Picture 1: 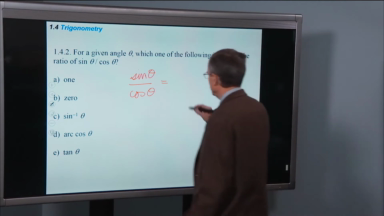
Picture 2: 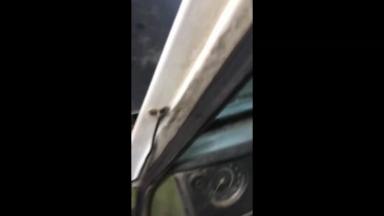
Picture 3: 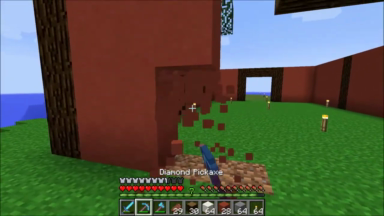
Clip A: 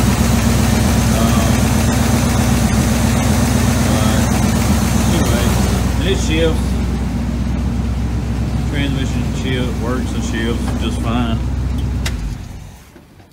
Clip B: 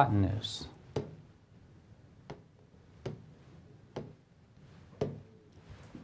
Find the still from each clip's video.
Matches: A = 2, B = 1